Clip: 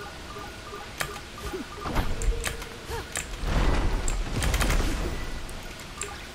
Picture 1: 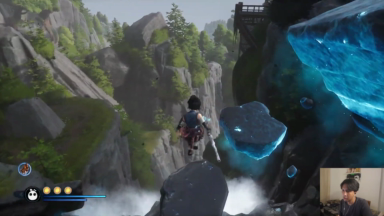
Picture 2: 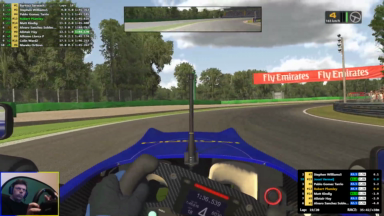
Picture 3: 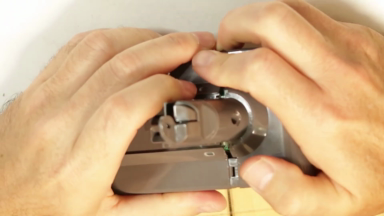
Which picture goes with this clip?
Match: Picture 1